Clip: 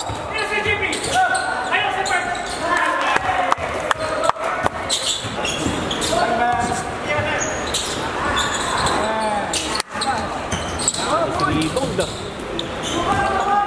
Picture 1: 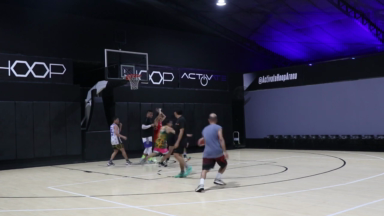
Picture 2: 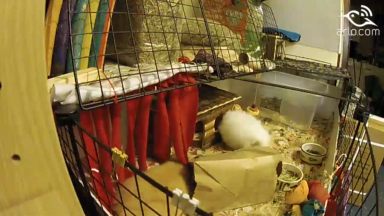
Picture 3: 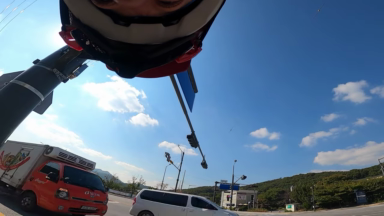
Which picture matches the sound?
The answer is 1